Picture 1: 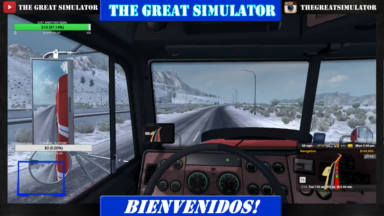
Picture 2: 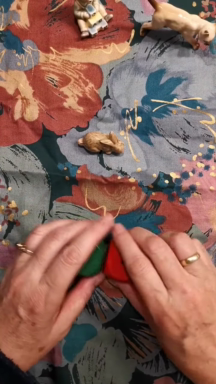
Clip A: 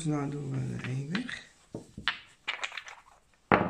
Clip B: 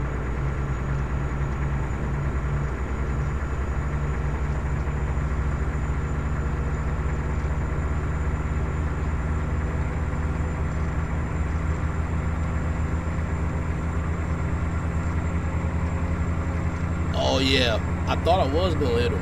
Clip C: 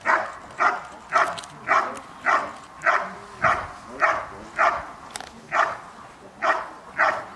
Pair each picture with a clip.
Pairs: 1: B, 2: A